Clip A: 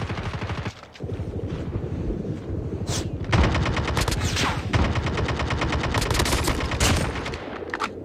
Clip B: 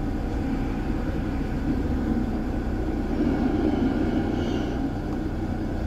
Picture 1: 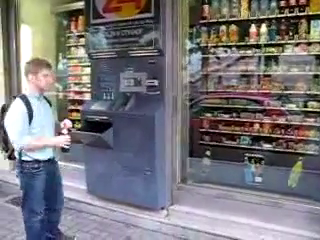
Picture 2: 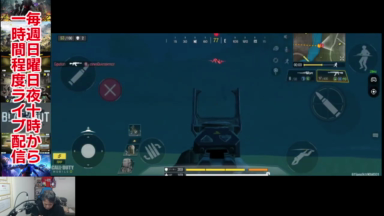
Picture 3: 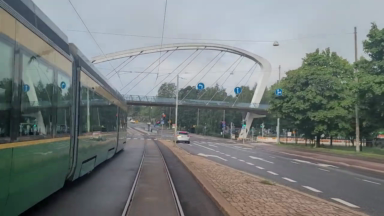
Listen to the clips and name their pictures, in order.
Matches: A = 2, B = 3